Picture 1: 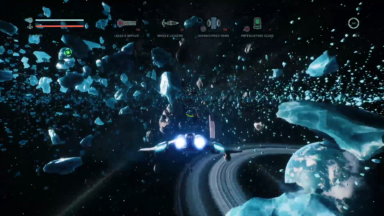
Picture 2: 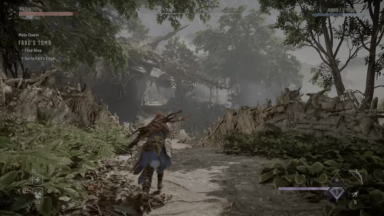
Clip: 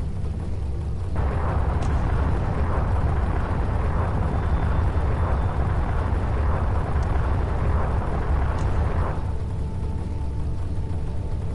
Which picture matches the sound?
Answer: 1